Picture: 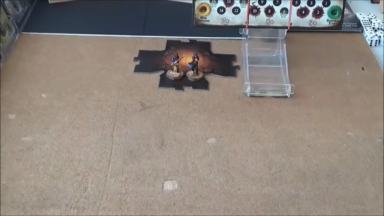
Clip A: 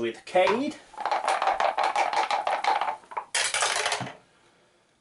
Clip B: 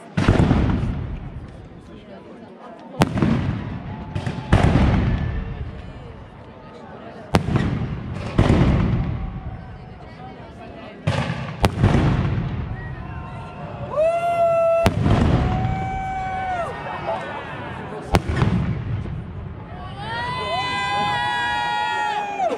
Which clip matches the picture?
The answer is A